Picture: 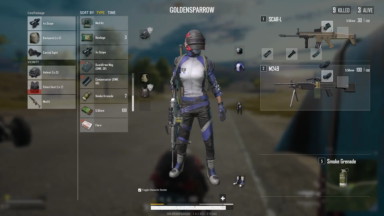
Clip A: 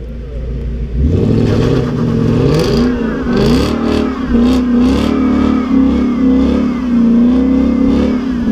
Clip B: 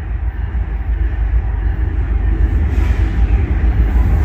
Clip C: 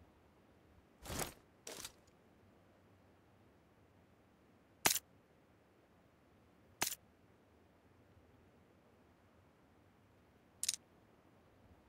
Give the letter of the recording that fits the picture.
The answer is C